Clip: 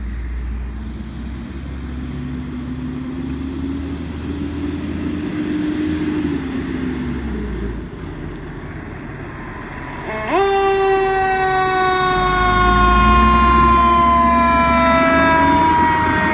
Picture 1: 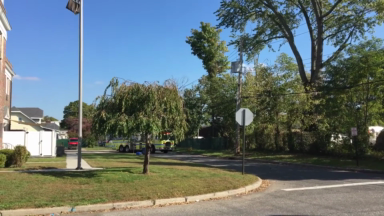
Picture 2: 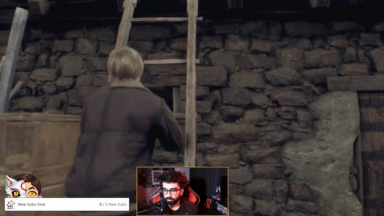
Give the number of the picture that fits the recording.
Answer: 1